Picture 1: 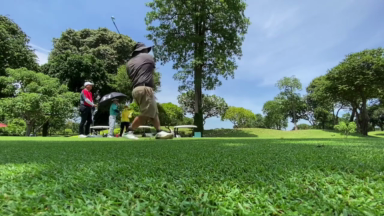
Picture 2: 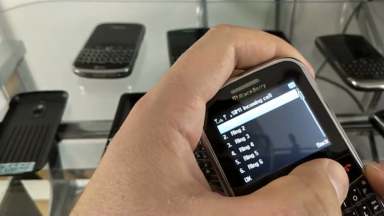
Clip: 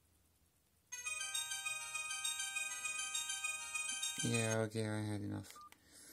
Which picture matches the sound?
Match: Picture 2